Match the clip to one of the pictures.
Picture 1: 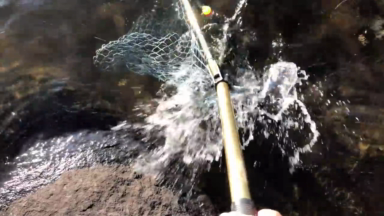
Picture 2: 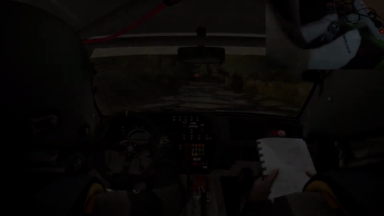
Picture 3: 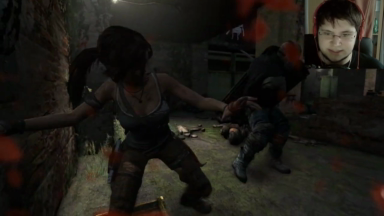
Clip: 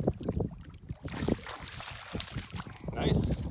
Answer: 1